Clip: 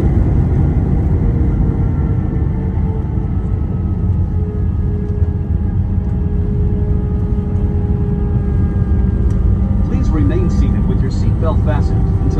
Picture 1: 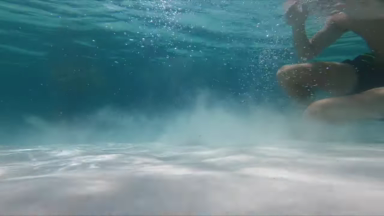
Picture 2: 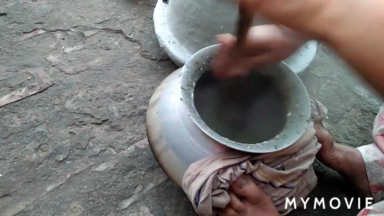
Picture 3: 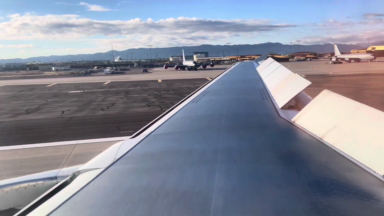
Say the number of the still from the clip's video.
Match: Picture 3